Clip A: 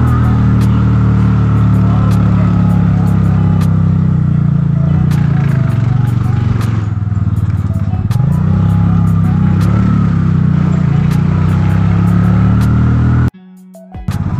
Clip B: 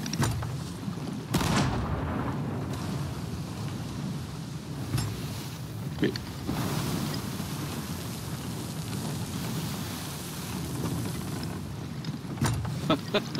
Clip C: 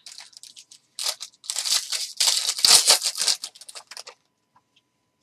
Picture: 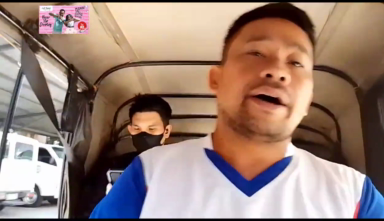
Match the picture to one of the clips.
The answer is A